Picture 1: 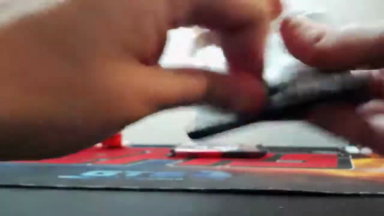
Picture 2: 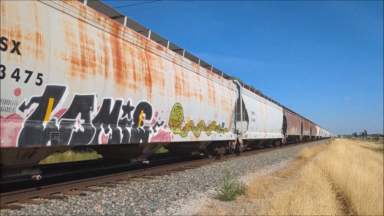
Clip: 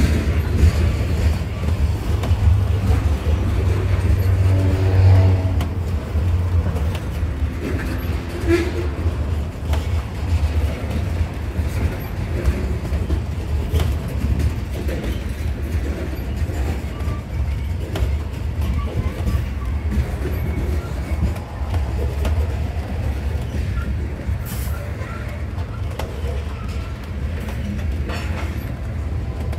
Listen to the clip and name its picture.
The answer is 2